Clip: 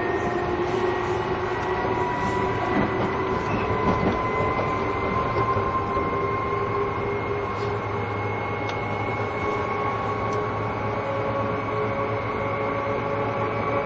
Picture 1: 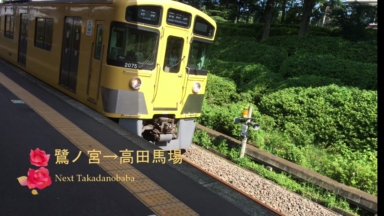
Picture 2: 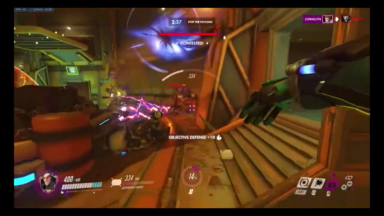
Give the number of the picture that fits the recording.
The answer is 1